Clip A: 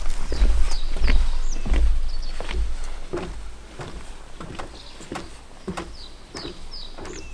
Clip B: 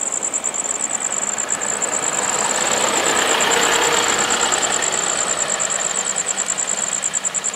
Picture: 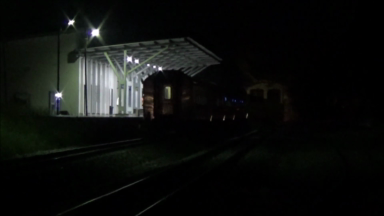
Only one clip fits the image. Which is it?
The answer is B